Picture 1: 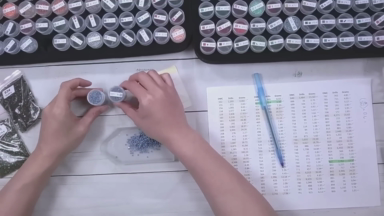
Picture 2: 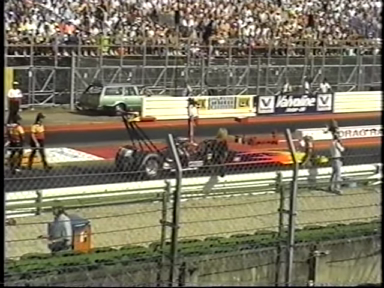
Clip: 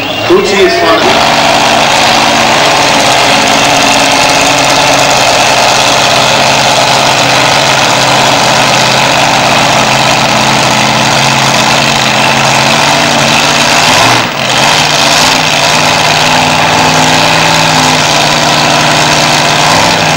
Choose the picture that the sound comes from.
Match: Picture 2